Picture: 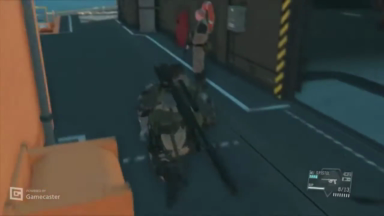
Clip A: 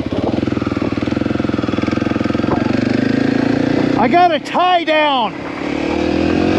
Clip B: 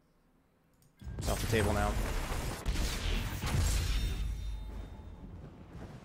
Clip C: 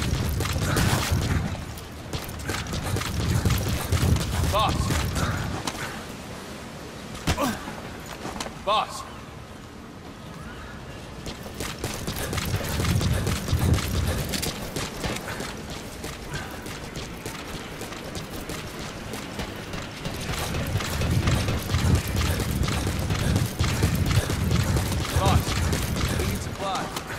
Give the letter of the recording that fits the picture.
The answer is C